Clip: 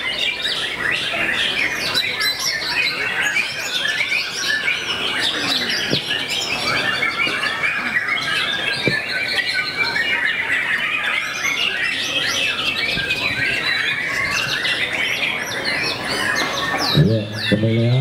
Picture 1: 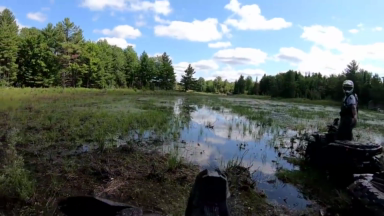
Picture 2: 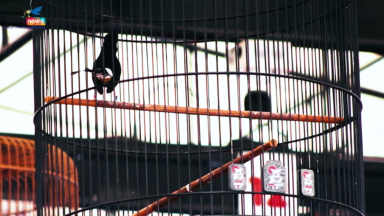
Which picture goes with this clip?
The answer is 2